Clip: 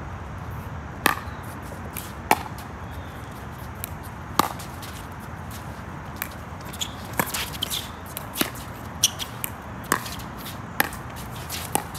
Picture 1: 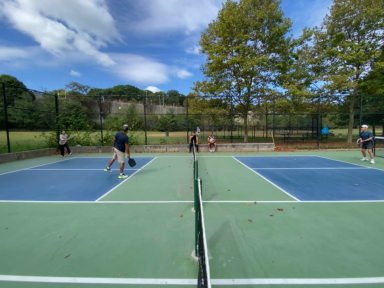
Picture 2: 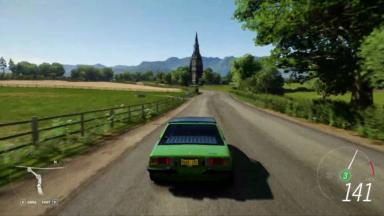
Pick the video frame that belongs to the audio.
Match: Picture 1